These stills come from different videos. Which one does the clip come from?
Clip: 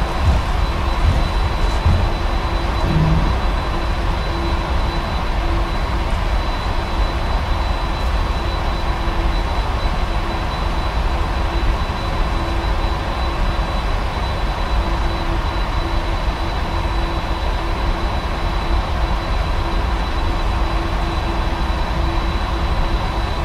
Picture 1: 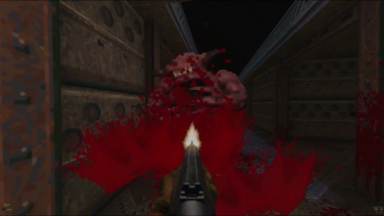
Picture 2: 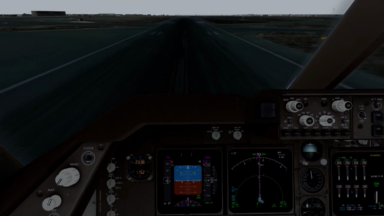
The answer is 2